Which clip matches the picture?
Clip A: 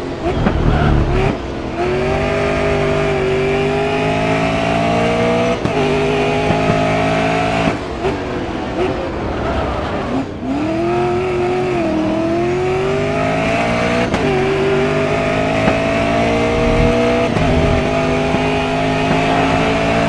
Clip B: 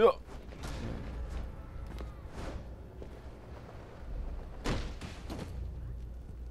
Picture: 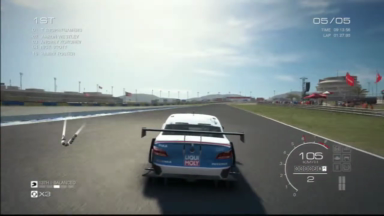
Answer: A